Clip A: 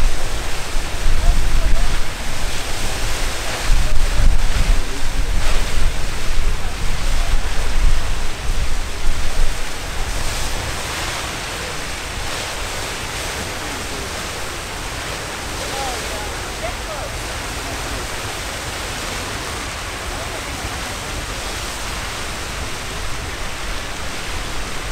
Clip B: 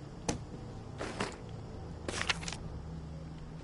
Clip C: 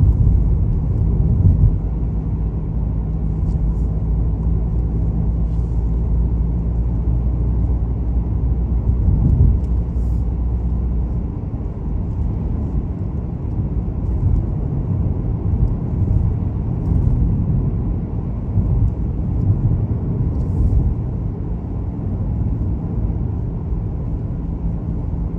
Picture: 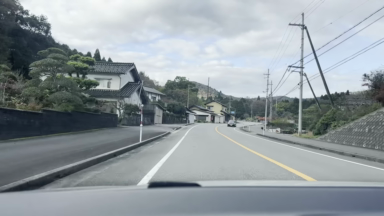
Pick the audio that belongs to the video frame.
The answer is C